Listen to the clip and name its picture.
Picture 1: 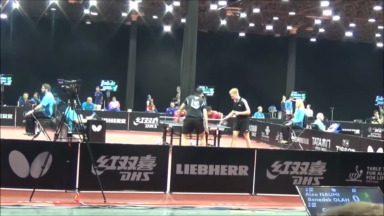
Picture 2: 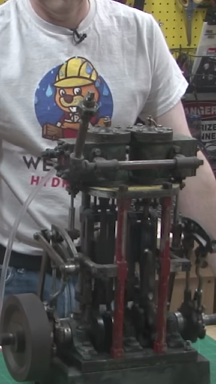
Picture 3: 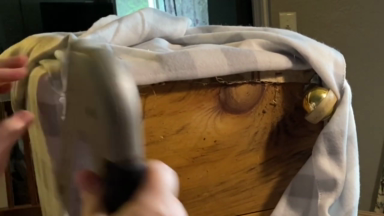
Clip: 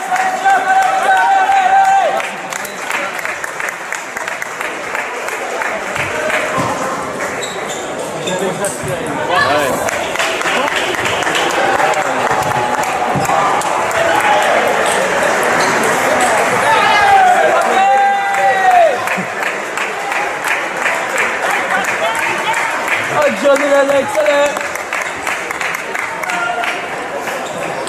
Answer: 1